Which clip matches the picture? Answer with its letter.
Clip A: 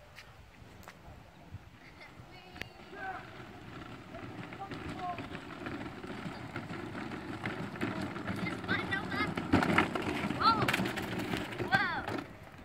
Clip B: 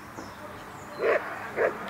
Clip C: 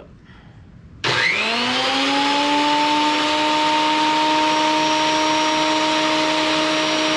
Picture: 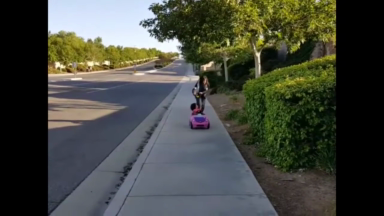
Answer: A